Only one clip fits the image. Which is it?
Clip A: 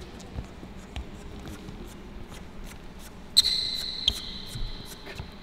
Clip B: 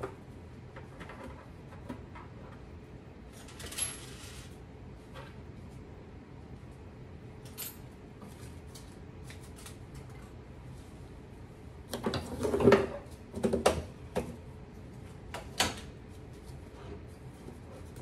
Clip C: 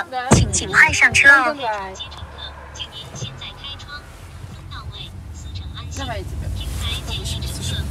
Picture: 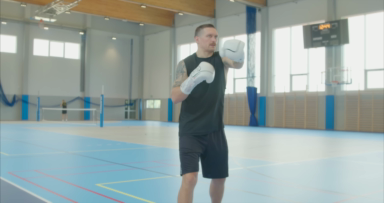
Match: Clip A